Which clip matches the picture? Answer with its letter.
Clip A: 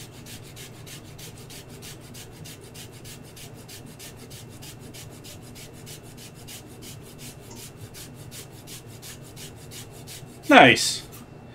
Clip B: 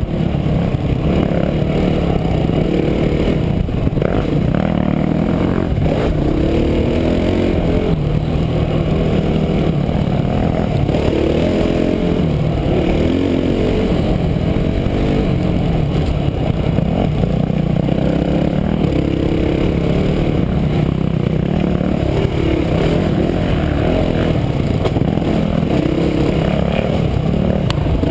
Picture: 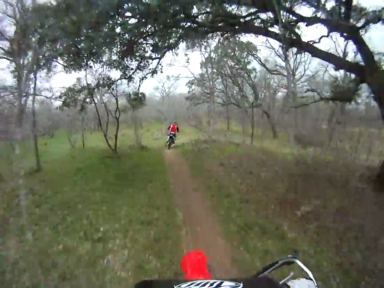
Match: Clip B